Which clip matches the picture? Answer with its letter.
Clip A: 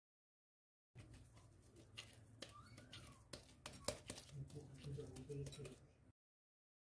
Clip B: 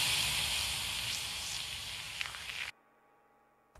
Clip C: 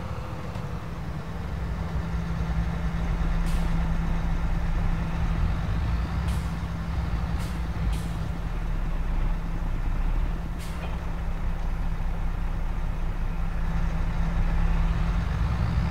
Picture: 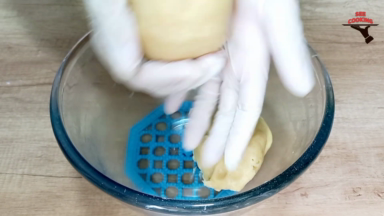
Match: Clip A